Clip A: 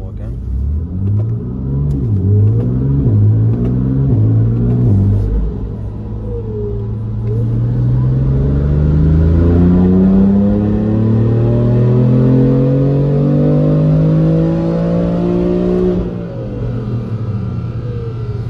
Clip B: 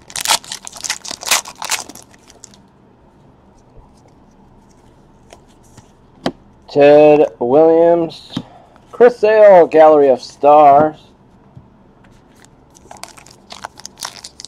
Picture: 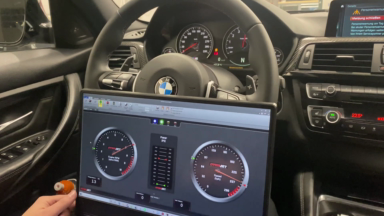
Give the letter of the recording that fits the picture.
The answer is A